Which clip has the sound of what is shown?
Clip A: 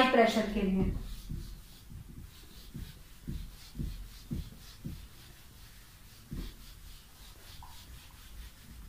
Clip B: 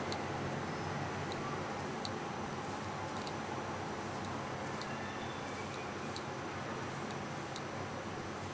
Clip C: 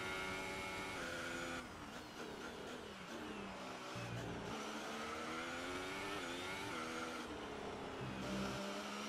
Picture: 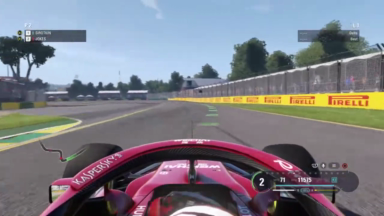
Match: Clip C